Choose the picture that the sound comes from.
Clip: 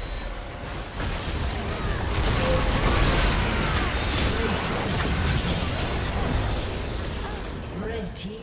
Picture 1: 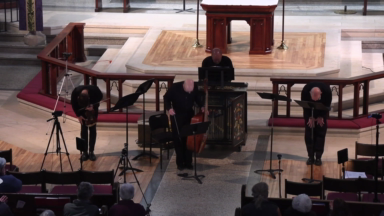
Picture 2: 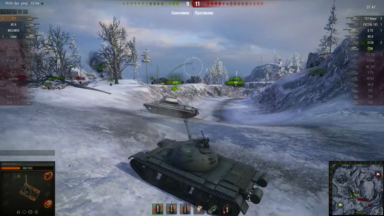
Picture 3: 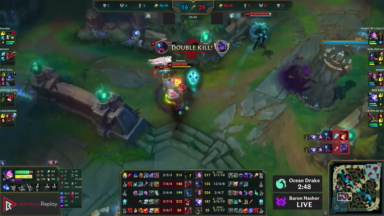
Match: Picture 3